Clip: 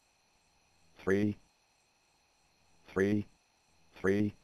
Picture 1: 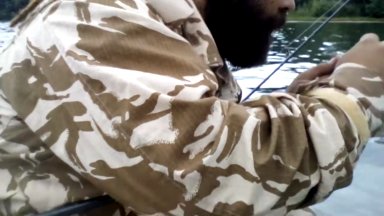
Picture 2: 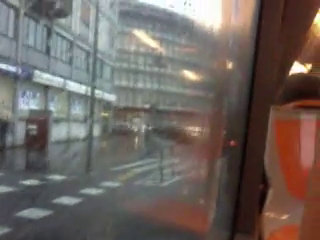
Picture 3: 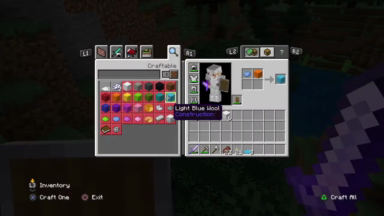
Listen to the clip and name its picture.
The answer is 3